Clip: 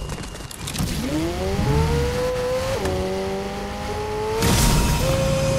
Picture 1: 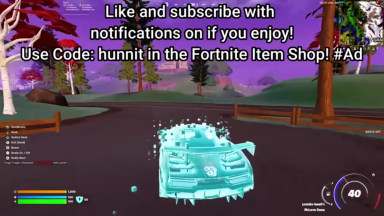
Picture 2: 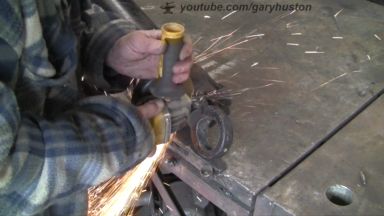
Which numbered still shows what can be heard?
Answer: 1